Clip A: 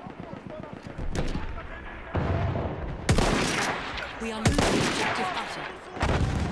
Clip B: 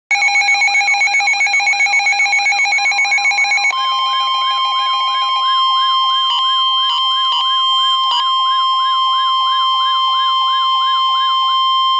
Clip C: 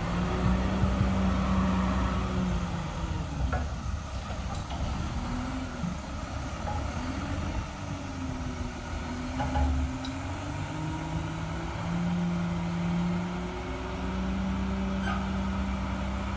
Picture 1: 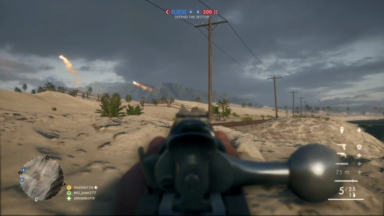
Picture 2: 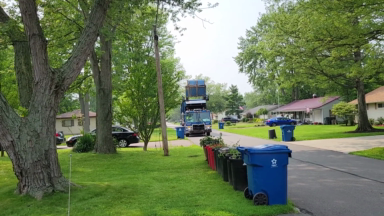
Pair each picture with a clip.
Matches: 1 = A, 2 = C